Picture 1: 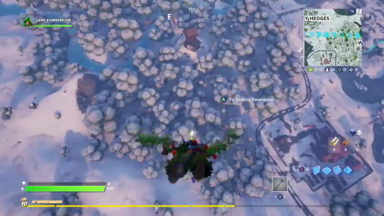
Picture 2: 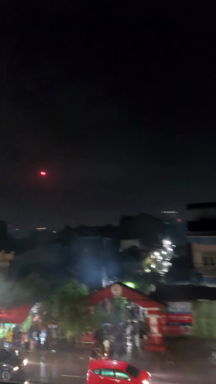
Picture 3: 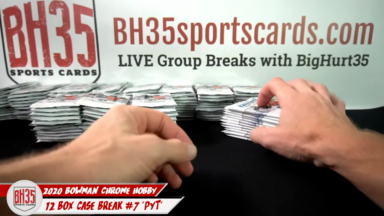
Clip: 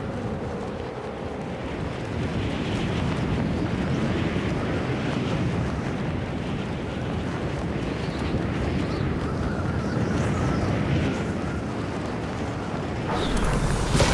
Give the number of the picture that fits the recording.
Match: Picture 1